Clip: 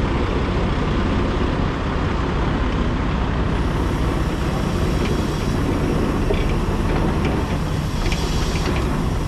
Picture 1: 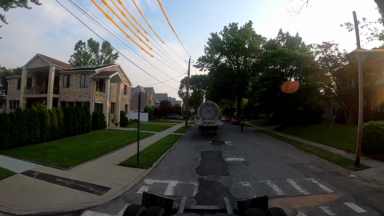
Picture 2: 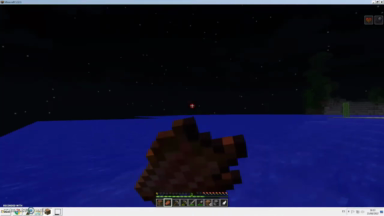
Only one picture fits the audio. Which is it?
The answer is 1